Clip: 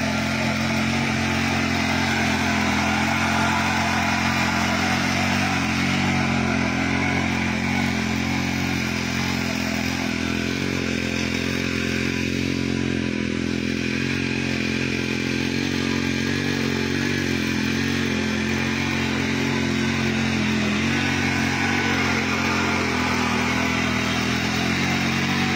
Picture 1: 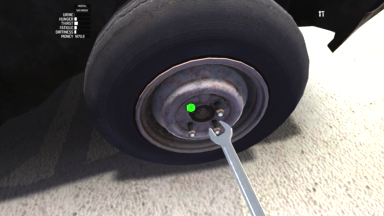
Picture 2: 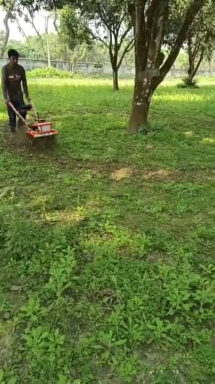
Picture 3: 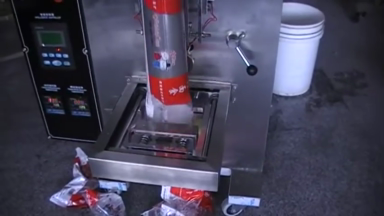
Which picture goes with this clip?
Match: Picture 2